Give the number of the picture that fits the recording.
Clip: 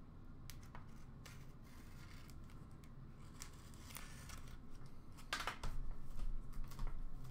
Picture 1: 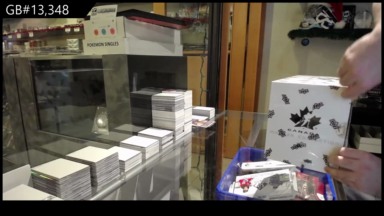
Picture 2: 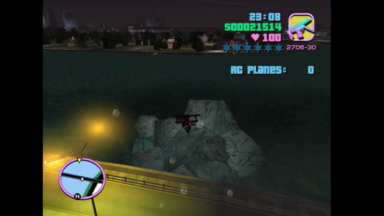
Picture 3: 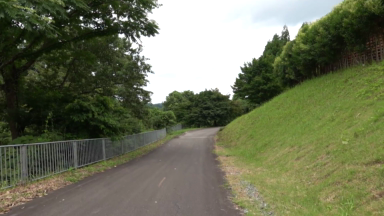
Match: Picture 1